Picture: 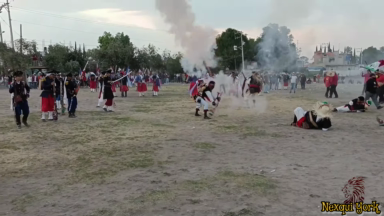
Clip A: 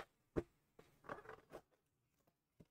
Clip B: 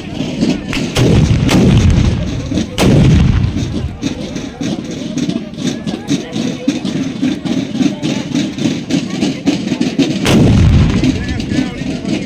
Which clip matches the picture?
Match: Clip B